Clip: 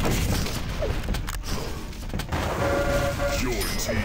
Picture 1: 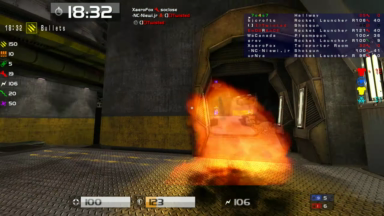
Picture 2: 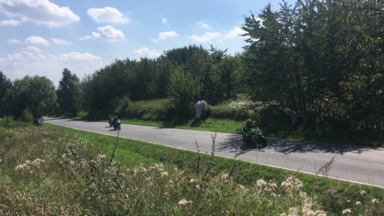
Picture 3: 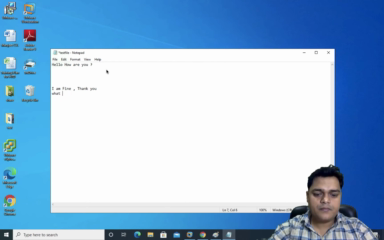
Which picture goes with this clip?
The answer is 1